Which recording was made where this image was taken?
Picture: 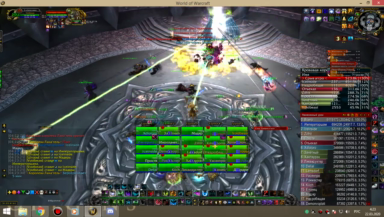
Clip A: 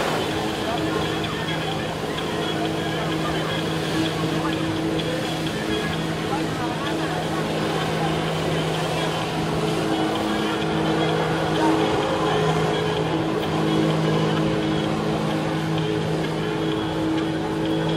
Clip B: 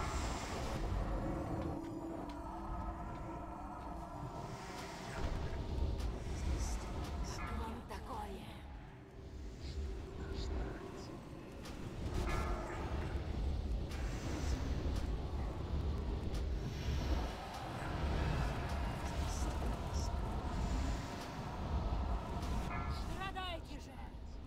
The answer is B